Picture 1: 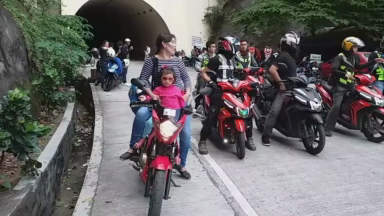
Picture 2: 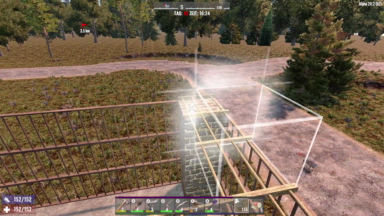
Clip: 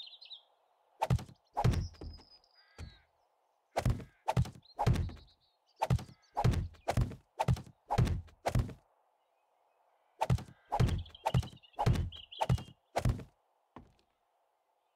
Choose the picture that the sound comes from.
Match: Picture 2